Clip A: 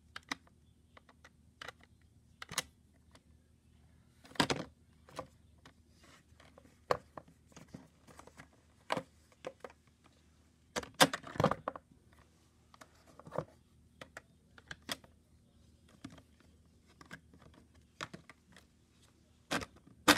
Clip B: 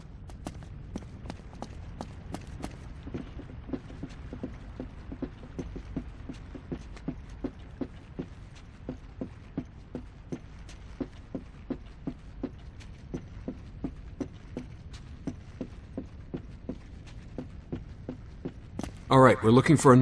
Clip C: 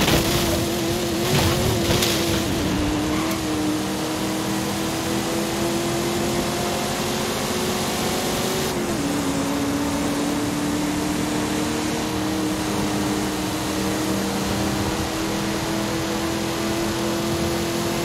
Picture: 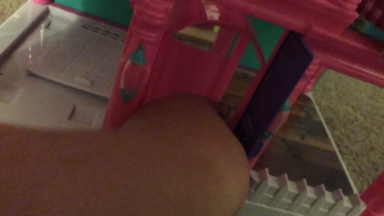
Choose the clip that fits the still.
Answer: A